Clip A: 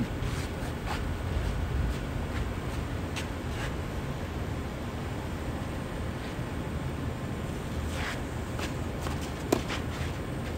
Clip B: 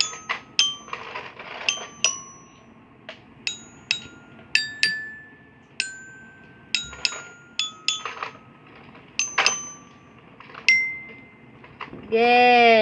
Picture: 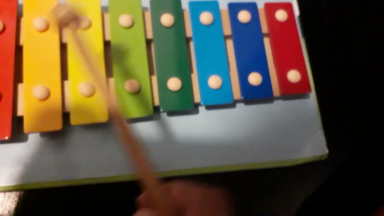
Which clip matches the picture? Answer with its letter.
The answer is B